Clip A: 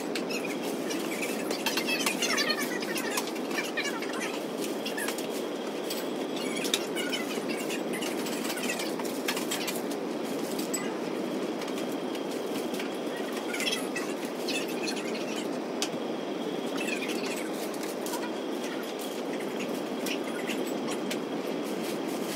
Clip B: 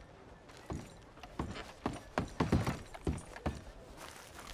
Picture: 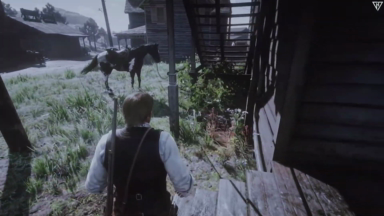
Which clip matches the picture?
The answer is B